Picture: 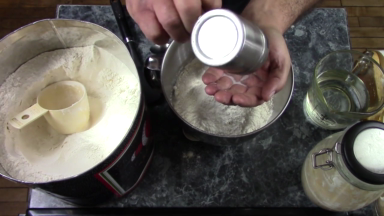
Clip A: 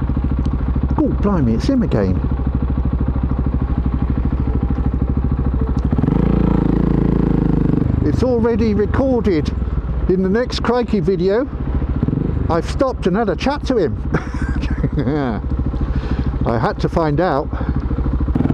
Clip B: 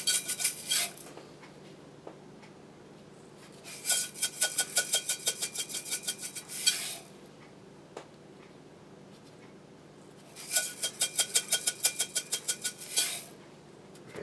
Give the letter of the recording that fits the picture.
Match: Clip B